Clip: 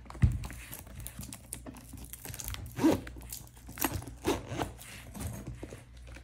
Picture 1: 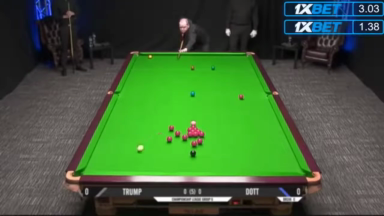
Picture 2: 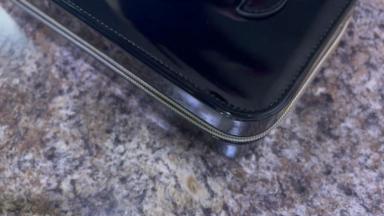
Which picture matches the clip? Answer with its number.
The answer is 2